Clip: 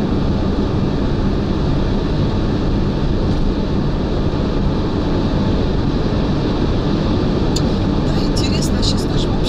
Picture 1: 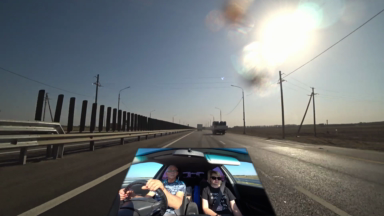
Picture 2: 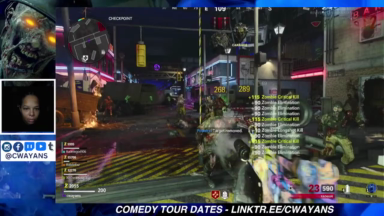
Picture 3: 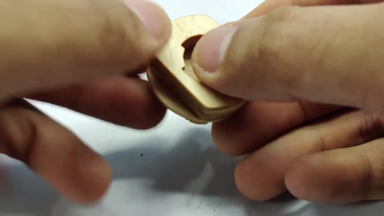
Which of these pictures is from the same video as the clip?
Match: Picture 1